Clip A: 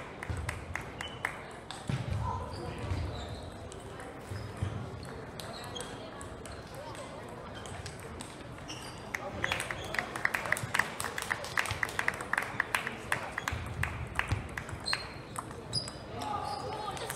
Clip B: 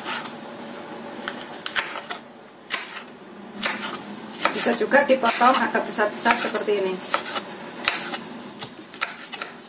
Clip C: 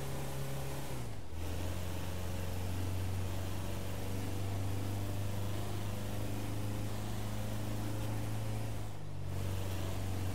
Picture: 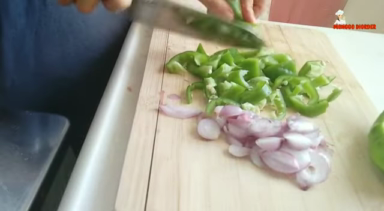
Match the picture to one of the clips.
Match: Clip B